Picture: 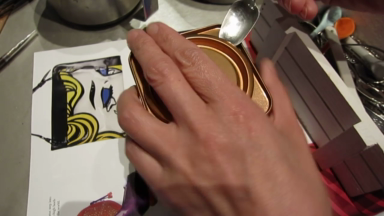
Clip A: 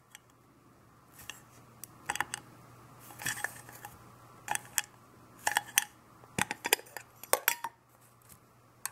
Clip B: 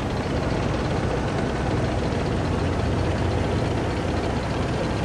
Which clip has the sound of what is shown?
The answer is A